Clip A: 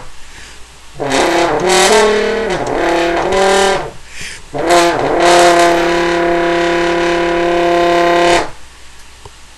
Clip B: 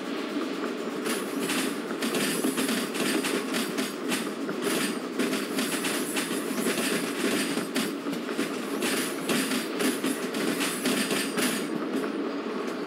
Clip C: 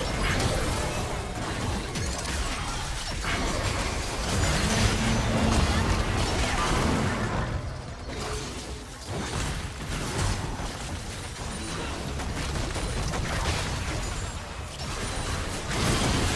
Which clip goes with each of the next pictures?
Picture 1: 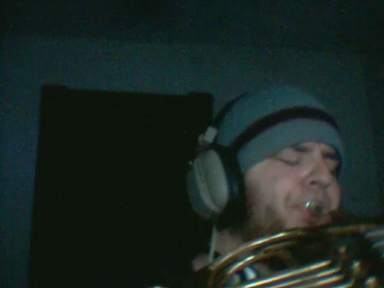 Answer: A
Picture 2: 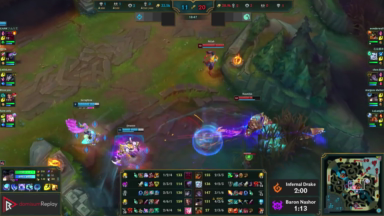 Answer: C